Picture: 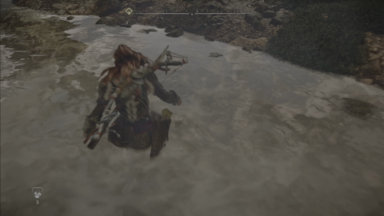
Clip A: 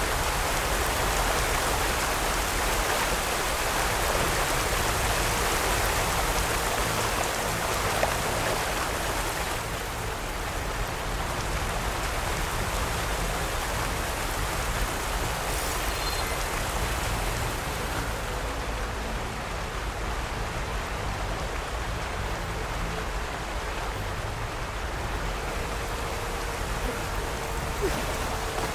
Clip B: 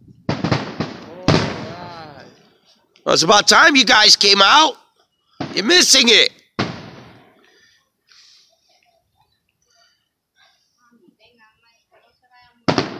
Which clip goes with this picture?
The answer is A